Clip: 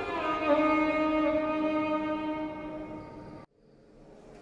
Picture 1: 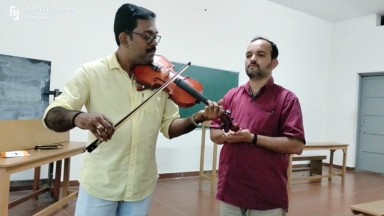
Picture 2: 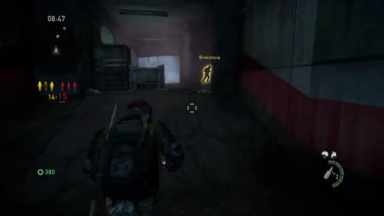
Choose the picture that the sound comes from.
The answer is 1